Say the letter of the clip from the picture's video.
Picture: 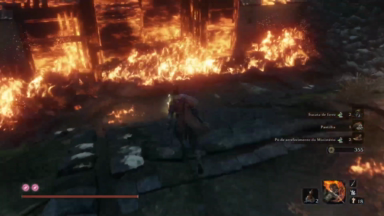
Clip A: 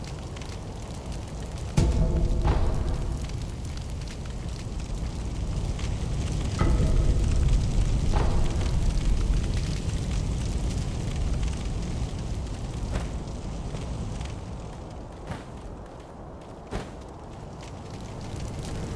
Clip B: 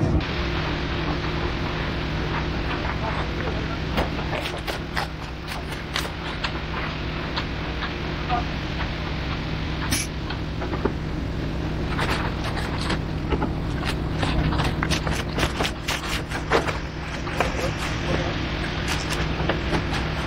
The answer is A